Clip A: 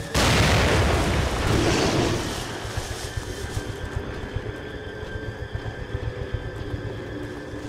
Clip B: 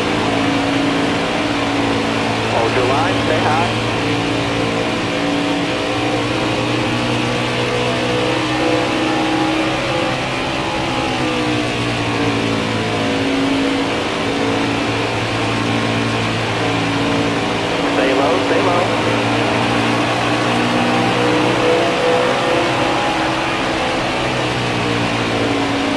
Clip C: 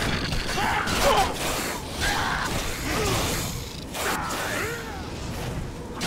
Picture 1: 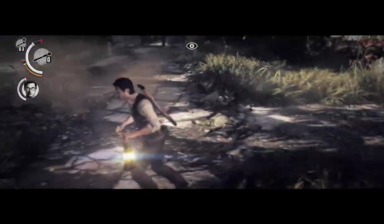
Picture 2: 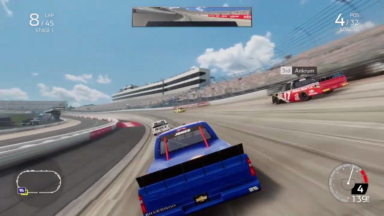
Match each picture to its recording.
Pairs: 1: A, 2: B